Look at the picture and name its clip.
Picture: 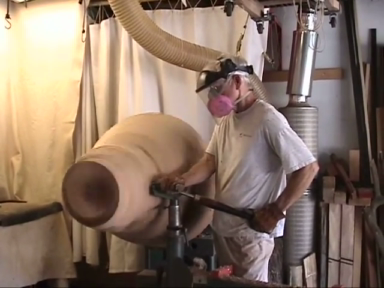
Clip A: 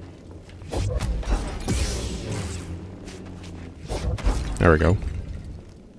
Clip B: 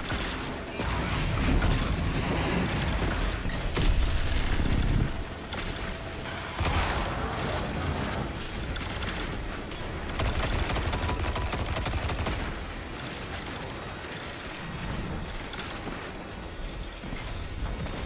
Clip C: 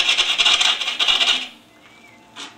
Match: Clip C